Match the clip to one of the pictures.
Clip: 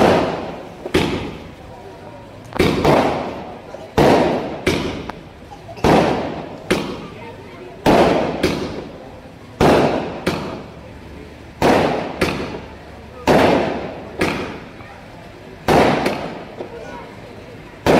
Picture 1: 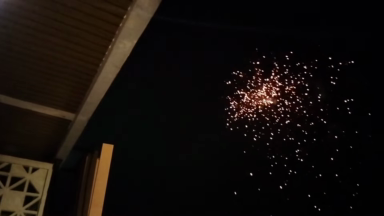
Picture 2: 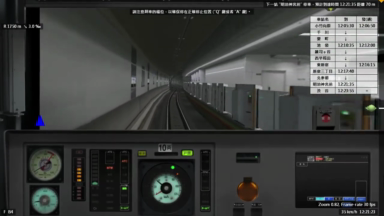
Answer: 1